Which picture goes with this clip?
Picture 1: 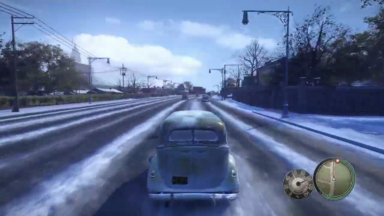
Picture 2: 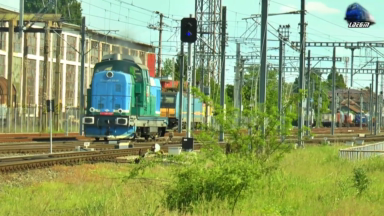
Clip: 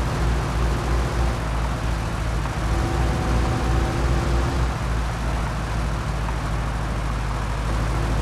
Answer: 1